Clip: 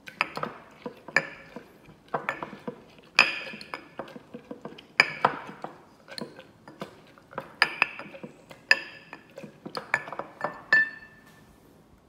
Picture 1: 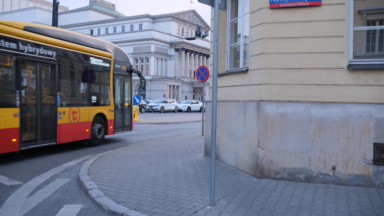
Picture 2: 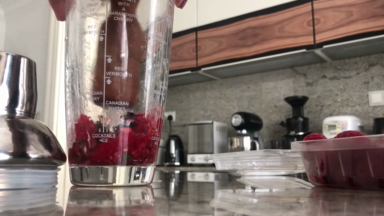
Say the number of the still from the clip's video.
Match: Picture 2